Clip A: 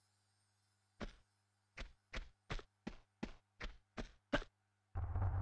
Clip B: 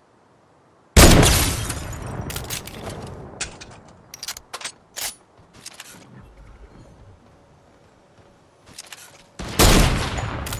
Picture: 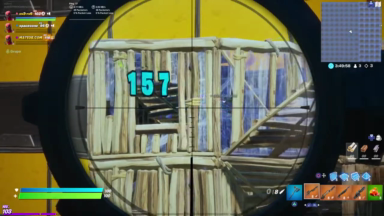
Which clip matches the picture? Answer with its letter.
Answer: B